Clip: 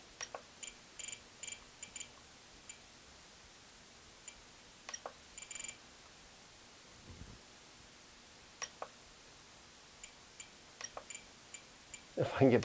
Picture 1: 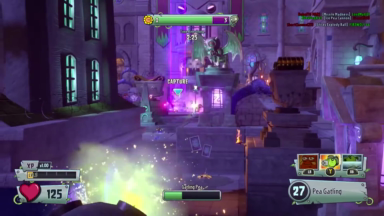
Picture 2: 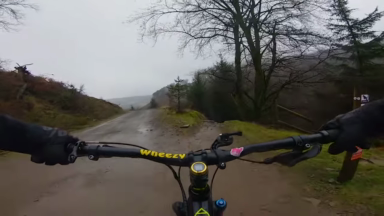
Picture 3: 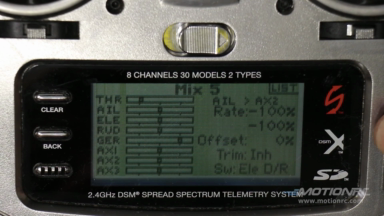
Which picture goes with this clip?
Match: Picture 3